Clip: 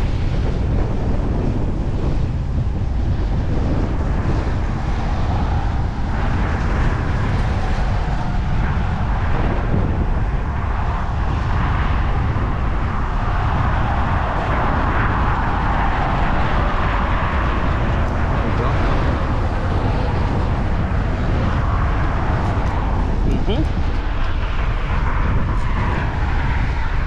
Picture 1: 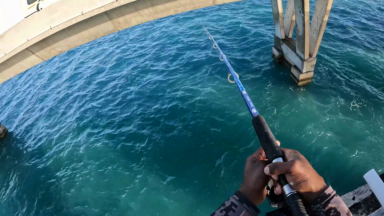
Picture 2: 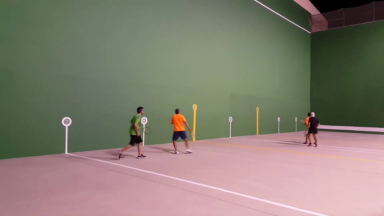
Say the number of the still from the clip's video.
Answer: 1